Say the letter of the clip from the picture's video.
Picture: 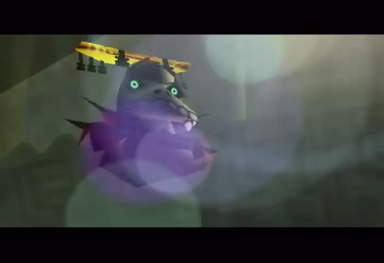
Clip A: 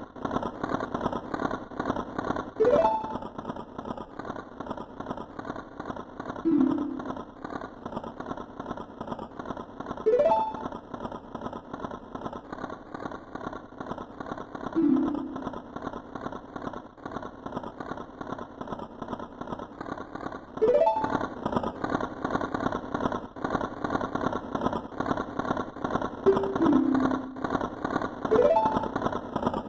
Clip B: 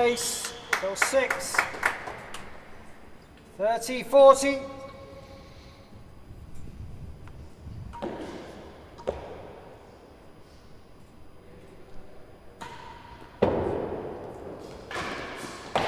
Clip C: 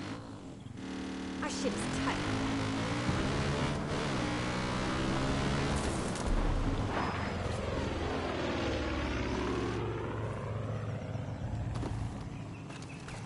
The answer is A